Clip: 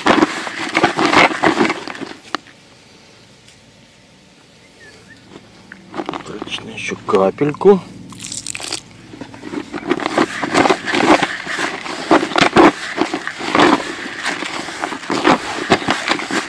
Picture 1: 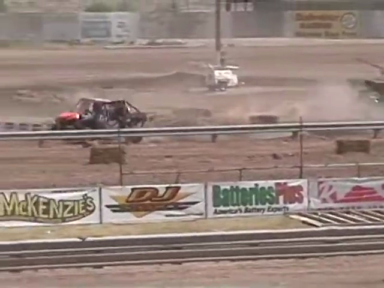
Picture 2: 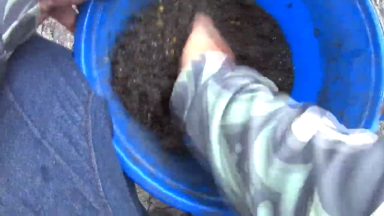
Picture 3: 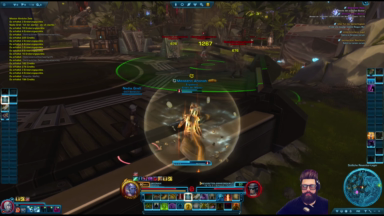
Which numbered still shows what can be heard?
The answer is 2